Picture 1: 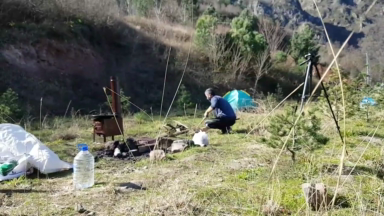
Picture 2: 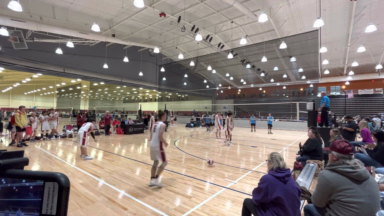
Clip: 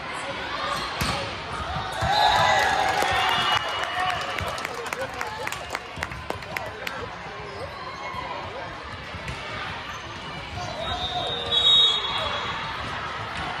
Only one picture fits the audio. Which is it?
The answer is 2